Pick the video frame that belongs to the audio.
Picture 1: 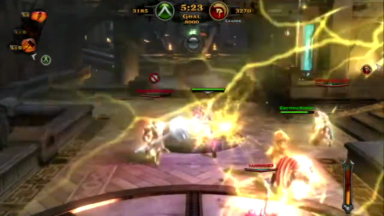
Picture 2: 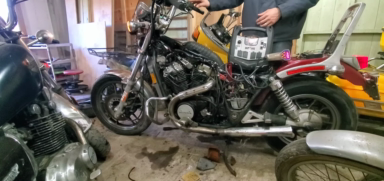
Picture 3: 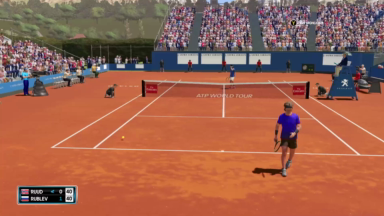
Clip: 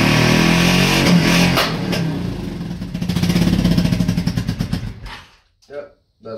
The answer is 2